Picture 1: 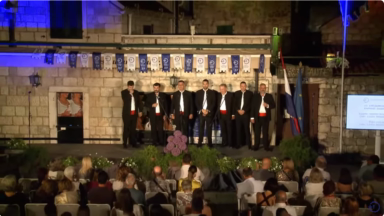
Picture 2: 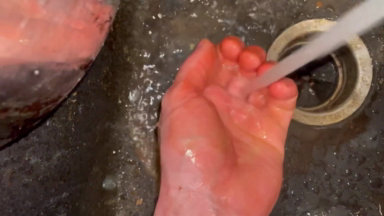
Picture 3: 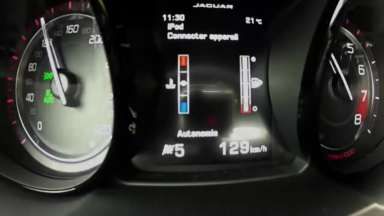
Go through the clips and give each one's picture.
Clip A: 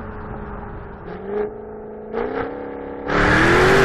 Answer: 3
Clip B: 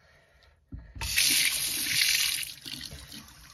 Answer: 2